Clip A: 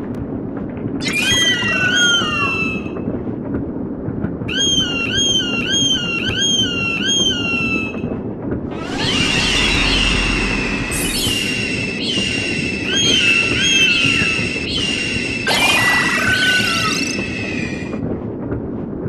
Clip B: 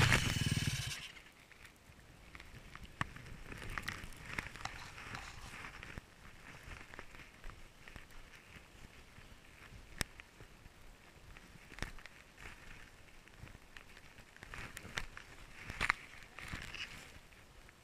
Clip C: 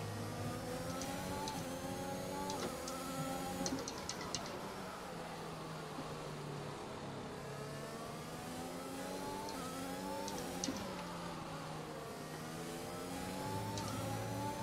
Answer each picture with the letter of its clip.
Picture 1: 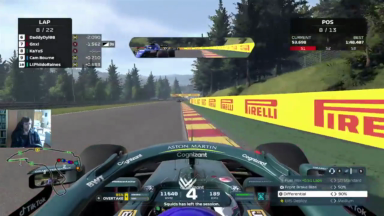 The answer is C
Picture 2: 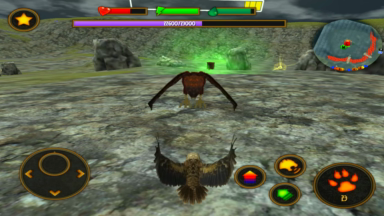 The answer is A